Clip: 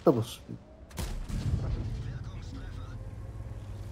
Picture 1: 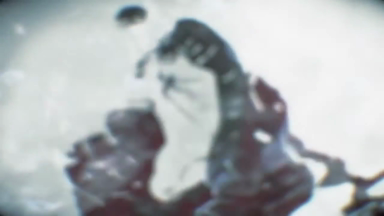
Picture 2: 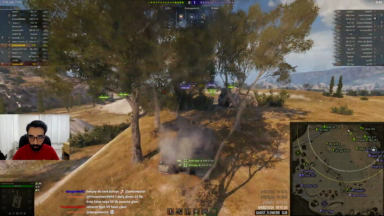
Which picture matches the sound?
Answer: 2